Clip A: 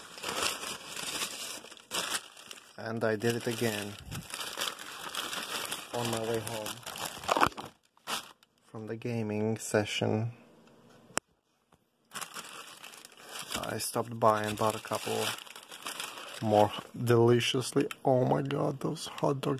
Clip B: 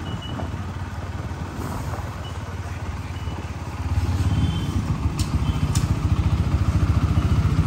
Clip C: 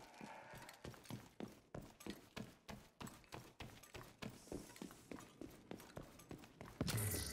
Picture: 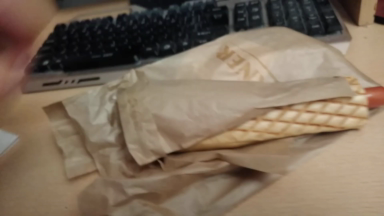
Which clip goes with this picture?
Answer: A